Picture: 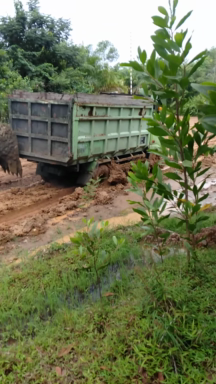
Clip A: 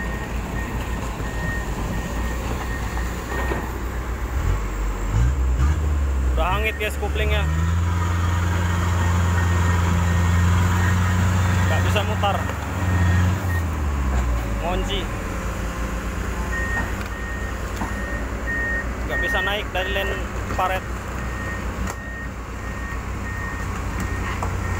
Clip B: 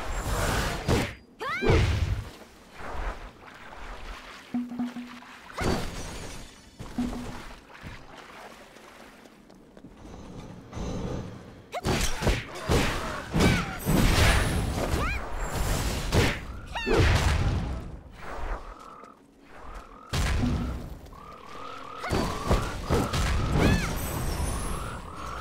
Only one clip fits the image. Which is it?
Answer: A